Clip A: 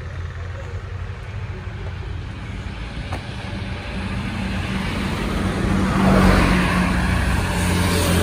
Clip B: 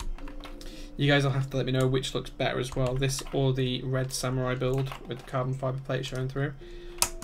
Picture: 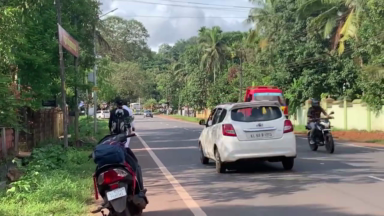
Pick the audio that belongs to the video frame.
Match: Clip A